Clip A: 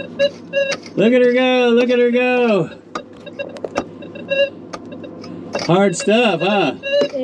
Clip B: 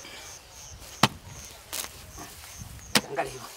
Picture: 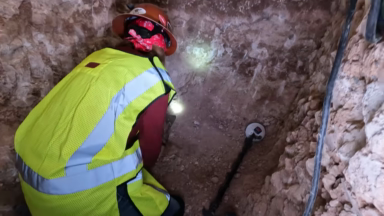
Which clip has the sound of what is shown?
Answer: A